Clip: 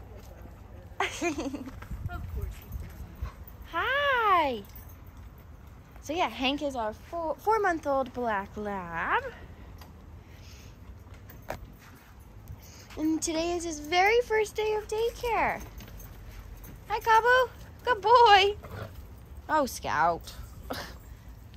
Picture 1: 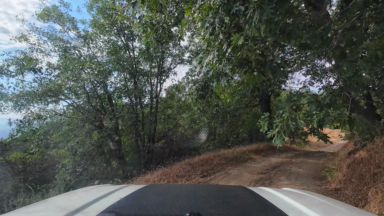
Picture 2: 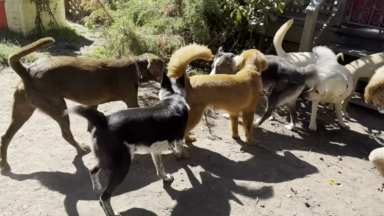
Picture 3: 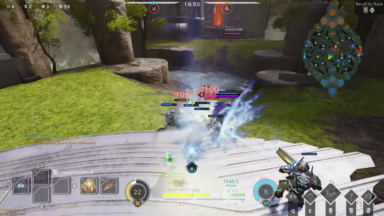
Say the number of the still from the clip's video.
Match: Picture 2